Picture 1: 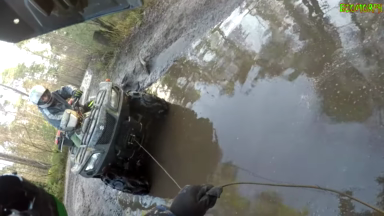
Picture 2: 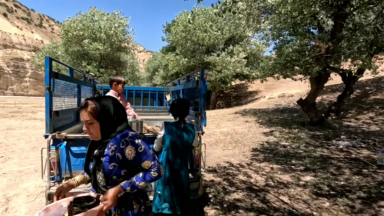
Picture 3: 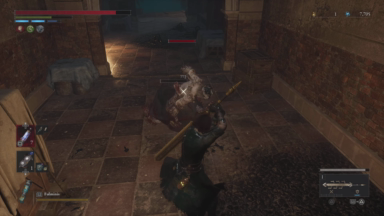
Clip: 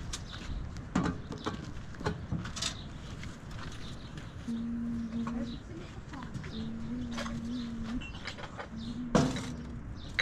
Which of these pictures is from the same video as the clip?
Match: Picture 2